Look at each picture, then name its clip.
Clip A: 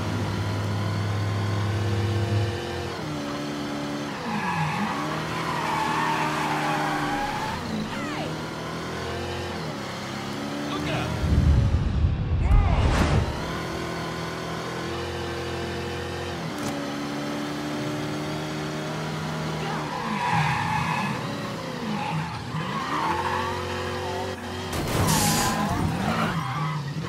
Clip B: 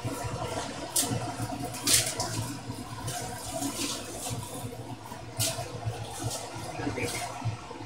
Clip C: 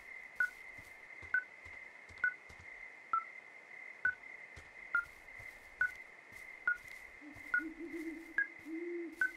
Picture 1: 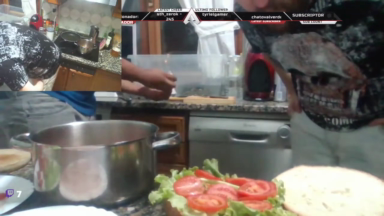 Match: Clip B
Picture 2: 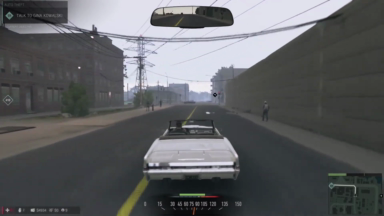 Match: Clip A